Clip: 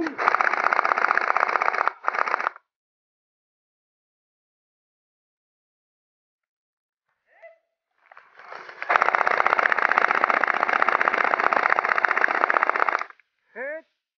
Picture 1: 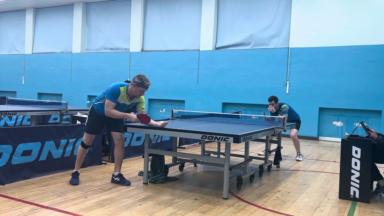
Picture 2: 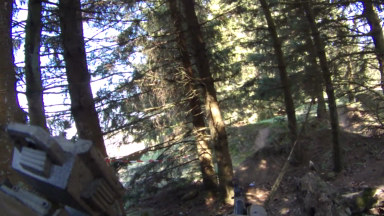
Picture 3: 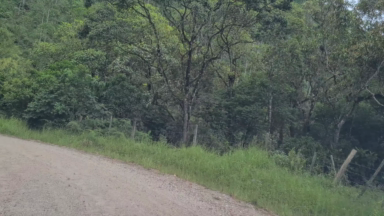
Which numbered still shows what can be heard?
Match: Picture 2